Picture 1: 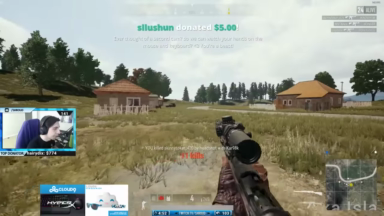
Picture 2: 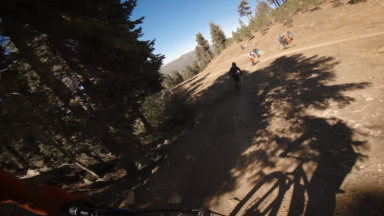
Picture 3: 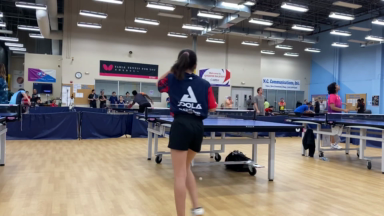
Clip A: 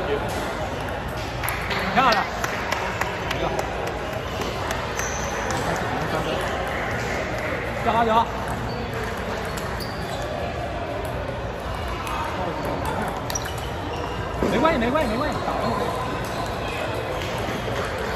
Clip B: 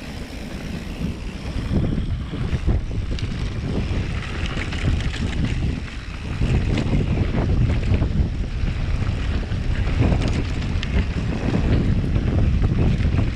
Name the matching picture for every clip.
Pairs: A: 3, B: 2